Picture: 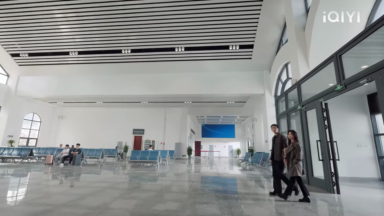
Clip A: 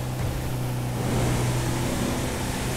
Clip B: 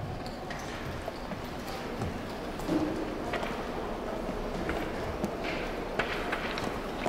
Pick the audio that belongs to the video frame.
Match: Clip B